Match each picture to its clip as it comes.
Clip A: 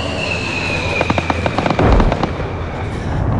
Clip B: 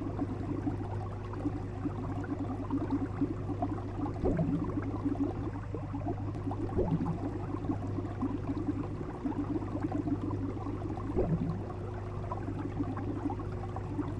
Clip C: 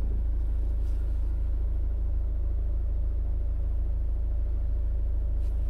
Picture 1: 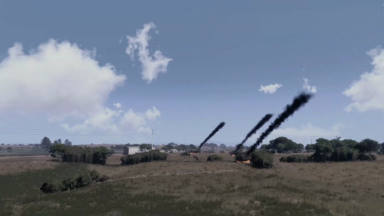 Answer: A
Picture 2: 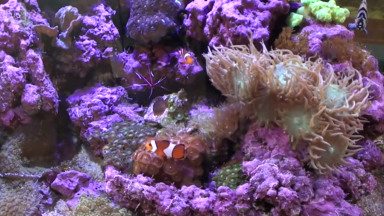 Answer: B